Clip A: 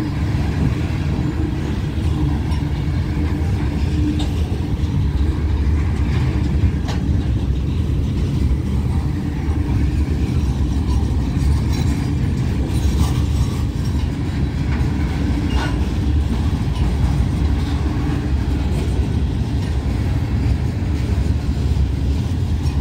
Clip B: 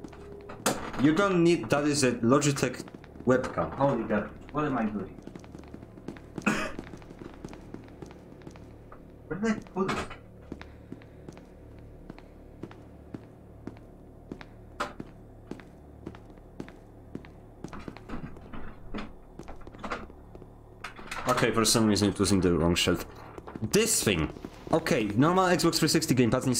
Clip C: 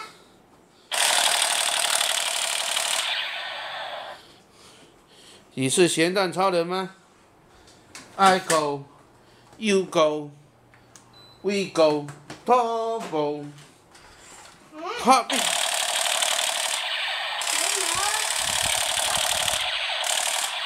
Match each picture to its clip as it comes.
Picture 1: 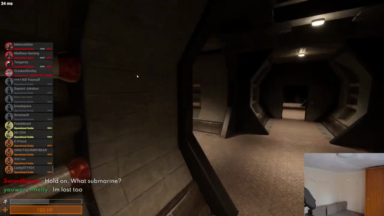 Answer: B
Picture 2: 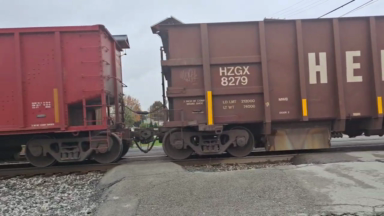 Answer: A